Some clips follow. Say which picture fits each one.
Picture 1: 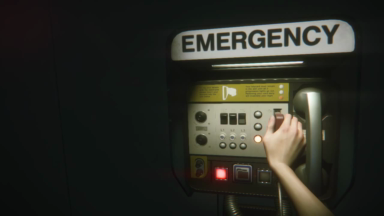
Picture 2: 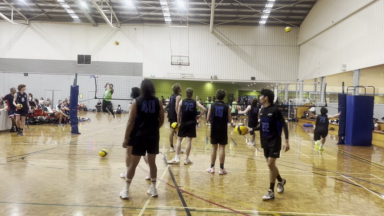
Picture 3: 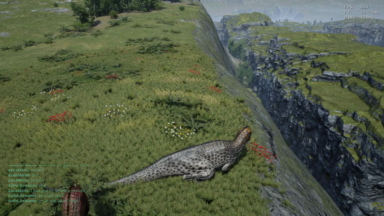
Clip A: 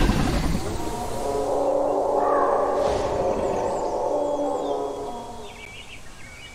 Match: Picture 3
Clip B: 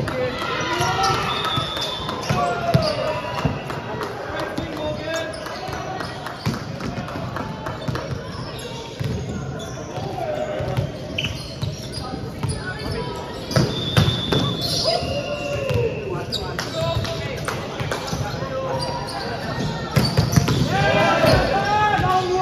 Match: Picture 2